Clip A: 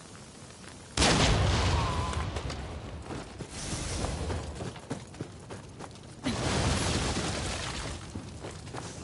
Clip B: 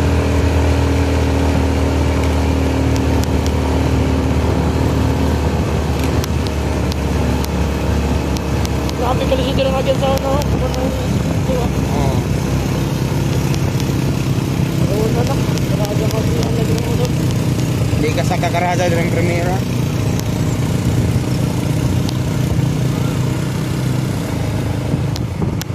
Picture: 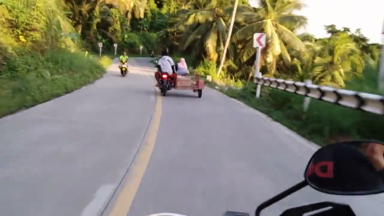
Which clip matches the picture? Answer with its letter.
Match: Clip B